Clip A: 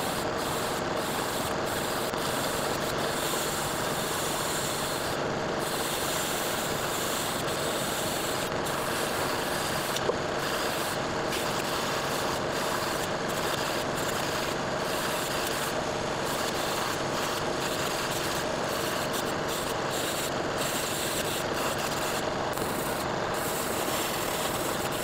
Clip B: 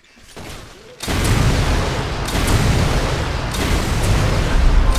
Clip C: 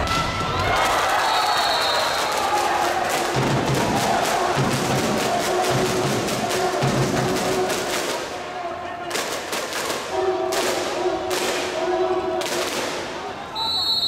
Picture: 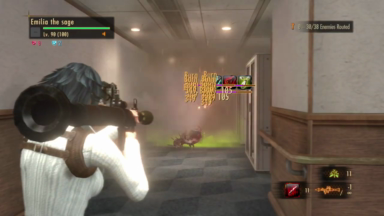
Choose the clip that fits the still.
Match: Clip B